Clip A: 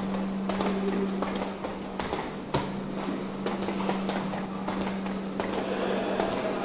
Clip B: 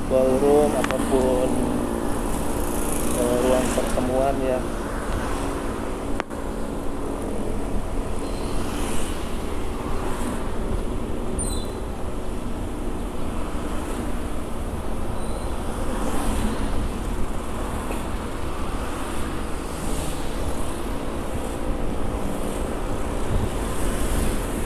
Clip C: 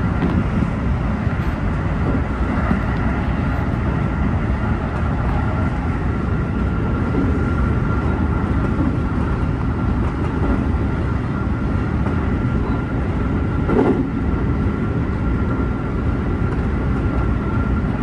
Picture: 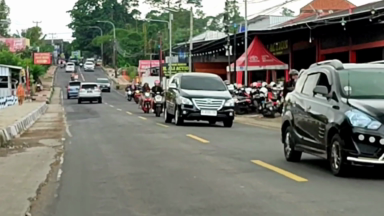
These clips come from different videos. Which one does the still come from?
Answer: B